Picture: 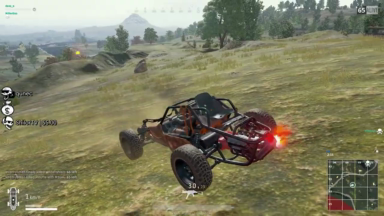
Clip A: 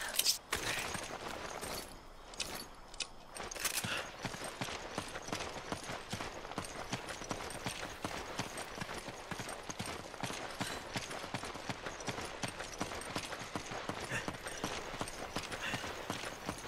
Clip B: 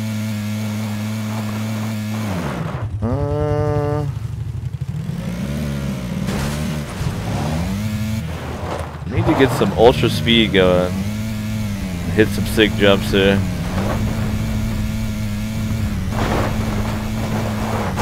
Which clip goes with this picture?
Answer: B